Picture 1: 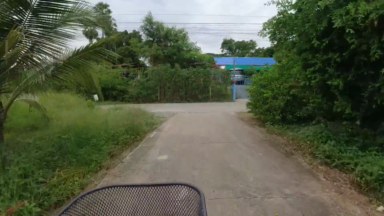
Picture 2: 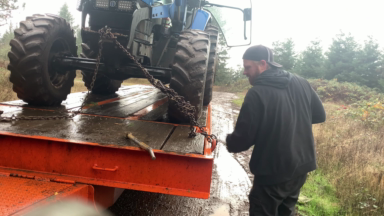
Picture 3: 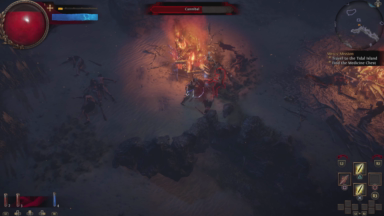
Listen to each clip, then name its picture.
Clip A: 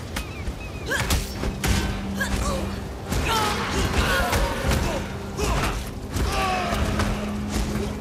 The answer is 3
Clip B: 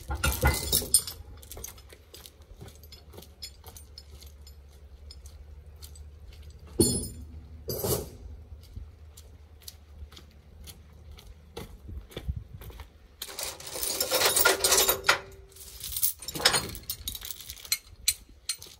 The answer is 2